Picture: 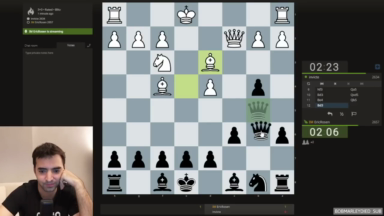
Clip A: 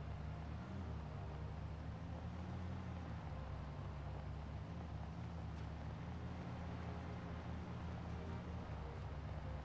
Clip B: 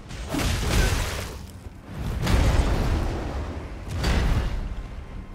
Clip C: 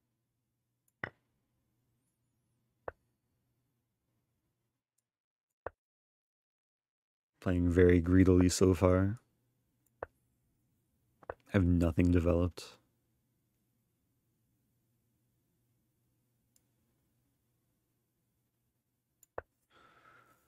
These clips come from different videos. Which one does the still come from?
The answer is C